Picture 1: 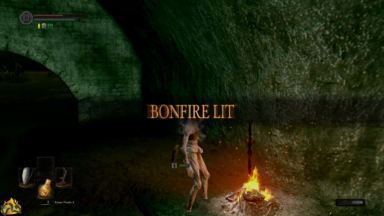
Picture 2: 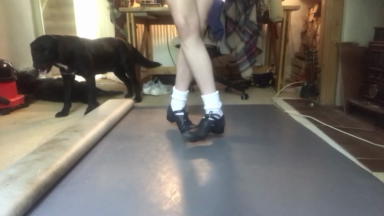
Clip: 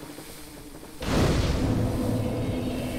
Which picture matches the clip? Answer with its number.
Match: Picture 1